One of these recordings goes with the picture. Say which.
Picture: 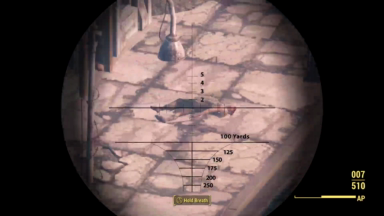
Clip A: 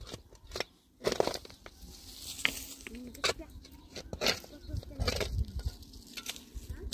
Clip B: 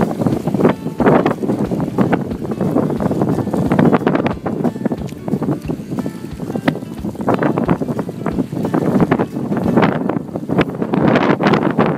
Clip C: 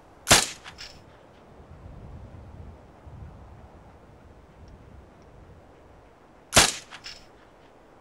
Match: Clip C